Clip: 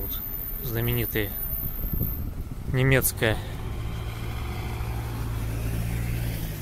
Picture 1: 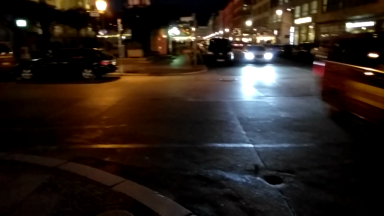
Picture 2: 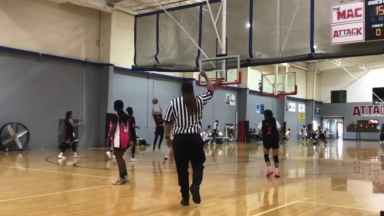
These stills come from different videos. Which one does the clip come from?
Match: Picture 1